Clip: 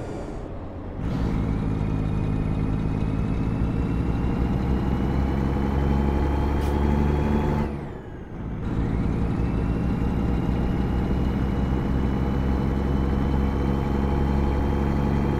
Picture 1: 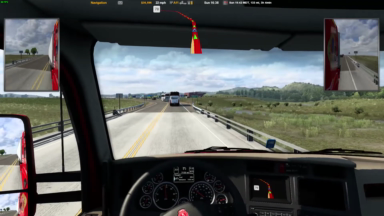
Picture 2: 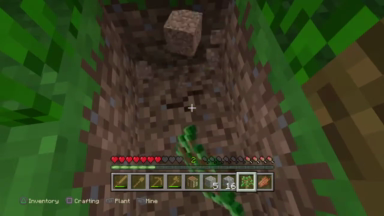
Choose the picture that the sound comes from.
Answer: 1